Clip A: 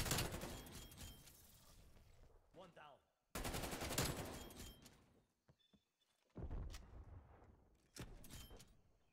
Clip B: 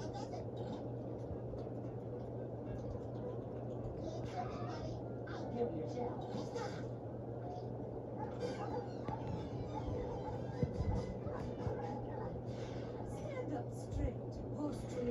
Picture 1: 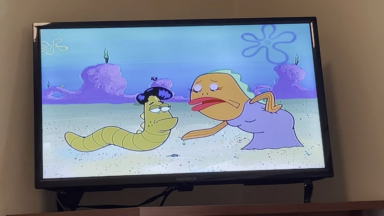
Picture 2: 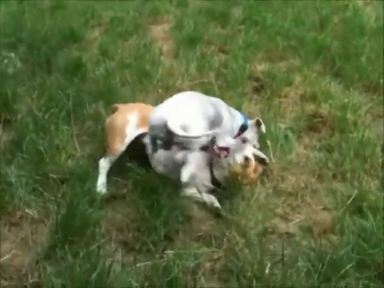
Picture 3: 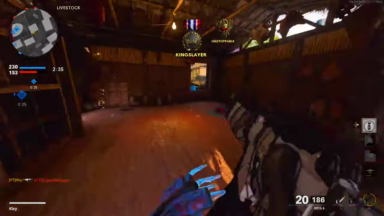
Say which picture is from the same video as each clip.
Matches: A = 3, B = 1